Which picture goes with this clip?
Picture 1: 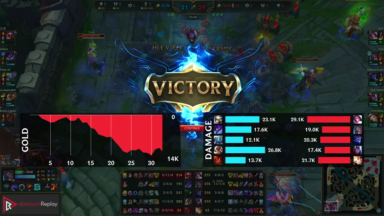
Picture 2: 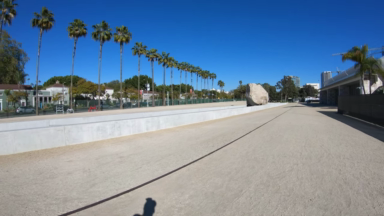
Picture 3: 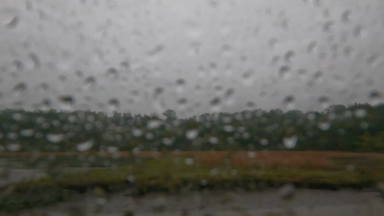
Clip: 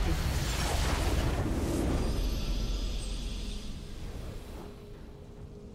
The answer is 1